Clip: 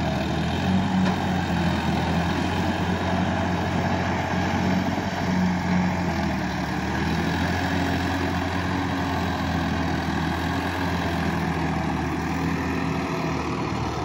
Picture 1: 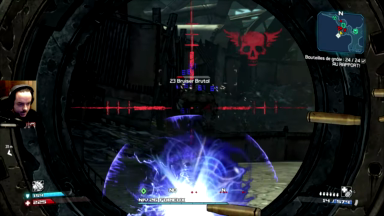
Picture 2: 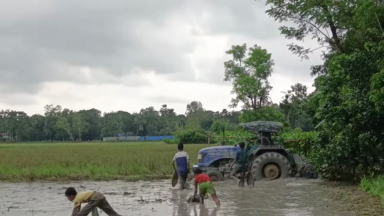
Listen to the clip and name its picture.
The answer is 2